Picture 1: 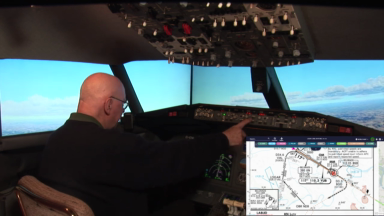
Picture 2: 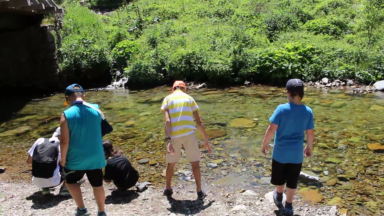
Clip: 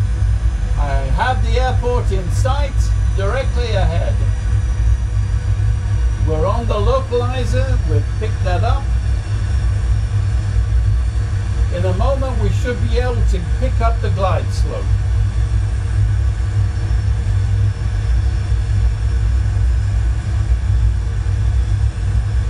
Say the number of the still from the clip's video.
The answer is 1